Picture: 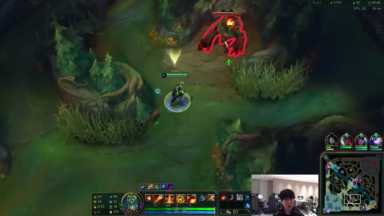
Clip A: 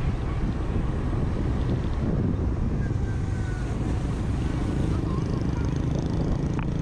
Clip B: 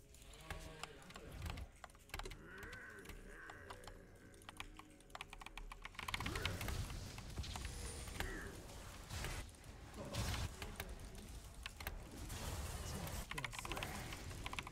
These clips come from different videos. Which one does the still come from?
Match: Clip B